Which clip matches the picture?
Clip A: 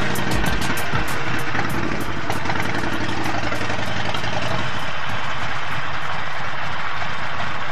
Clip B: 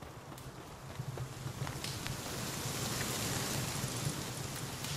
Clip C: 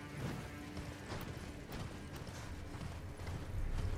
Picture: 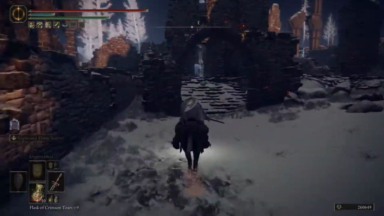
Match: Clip C